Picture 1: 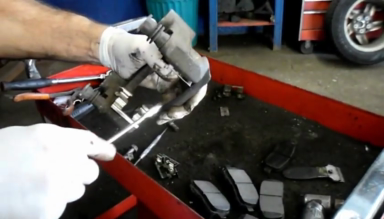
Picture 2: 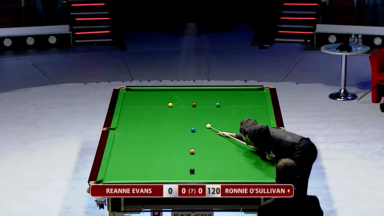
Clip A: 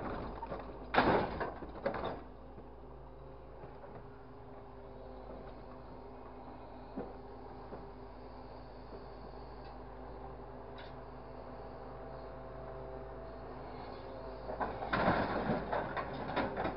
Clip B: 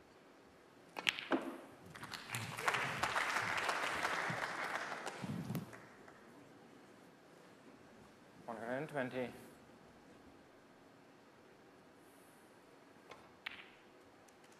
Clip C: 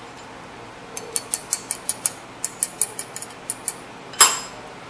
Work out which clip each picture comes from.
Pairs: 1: C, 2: B